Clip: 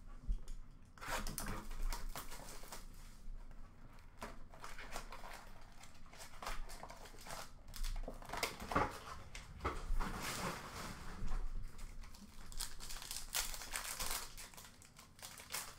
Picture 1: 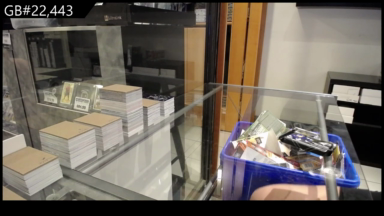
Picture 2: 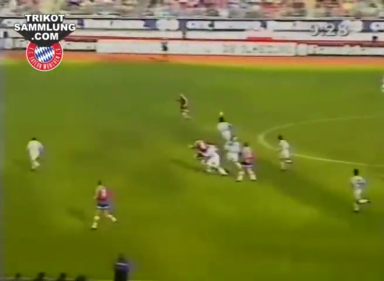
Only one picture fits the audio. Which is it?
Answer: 1